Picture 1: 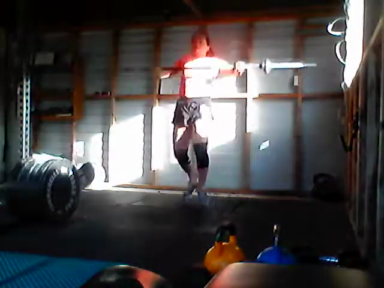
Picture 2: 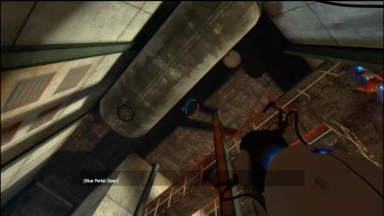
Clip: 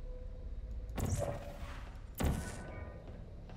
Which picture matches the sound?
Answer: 2